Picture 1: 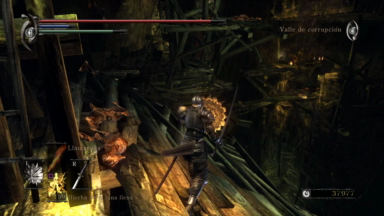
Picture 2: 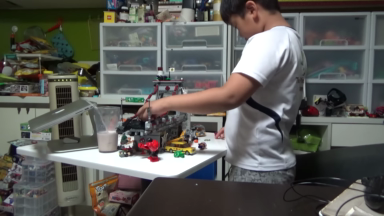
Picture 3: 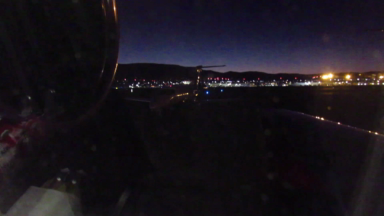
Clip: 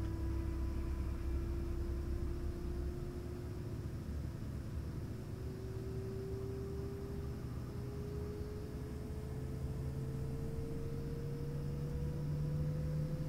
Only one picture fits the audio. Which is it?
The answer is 3